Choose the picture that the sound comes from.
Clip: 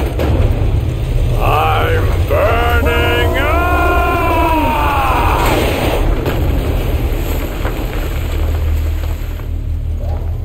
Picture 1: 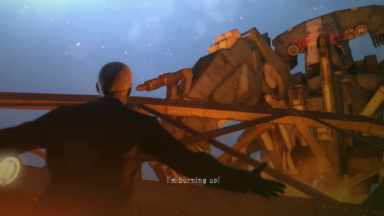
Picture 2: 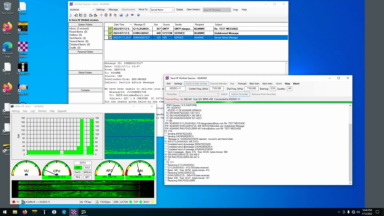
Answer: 1